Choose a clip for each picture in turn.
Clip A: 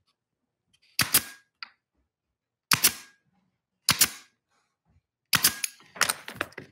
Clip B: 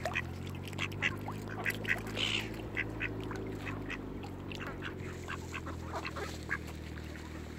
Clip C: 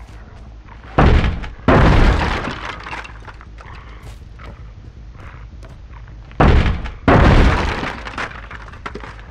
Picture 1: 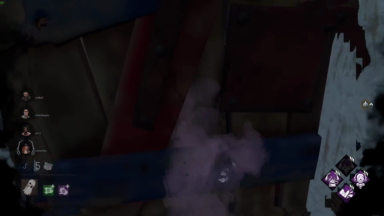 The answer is C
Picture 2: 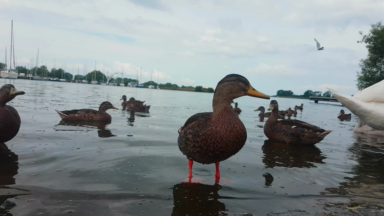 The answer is B